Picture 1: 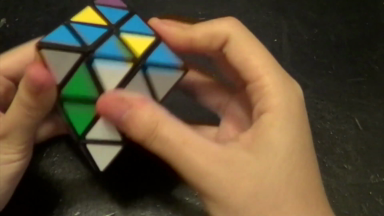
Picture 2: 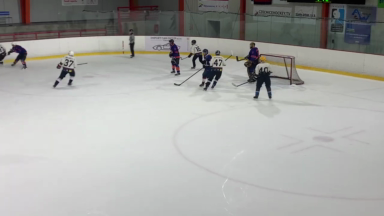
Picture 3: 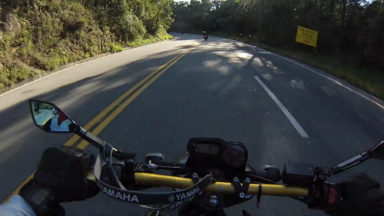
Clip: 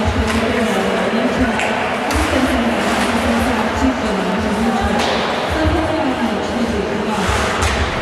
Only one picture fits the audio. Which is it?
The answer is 2